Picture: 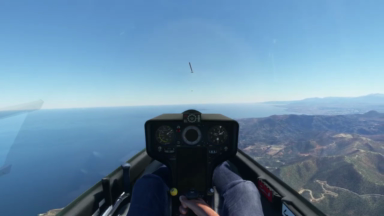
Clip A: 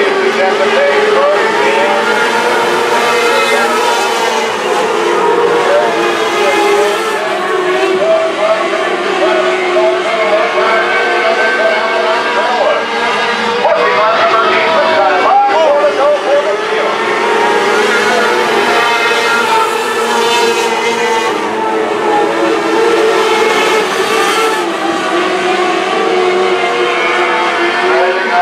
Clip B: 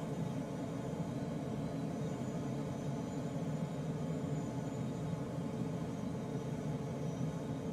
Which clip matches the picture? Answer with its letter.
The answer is B